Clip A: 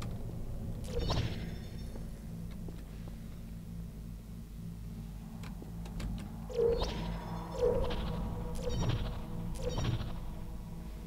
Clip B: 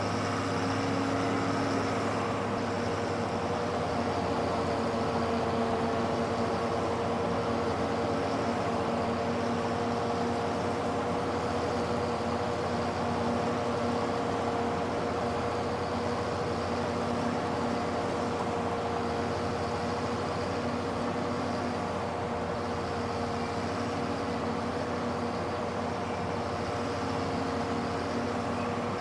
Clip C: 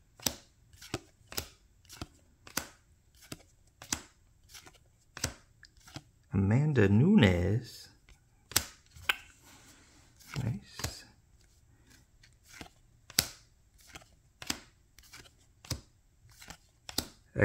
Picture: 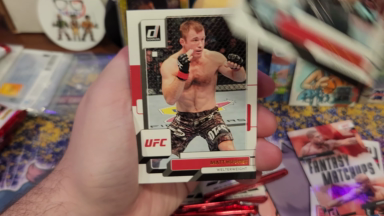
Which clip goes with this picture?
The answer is C